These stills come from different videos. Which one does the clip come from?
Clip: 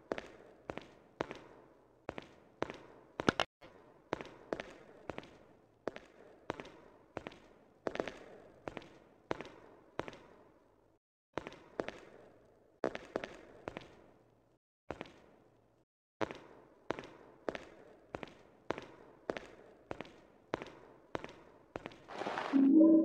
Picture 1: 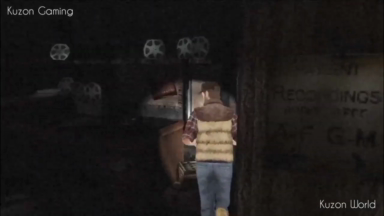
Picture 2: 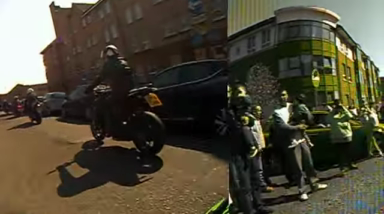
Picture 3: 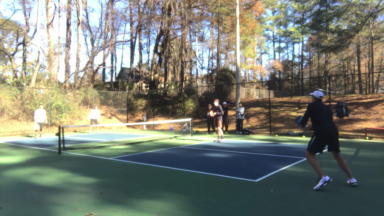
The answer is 1